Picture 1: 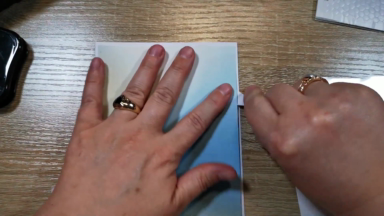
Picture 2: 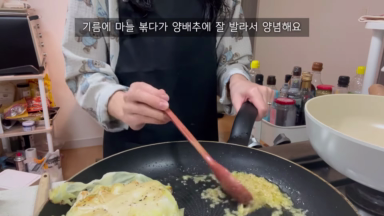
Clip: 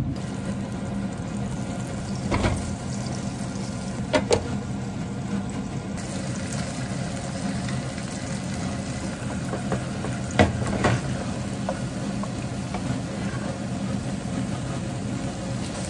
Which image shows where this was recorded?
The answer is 2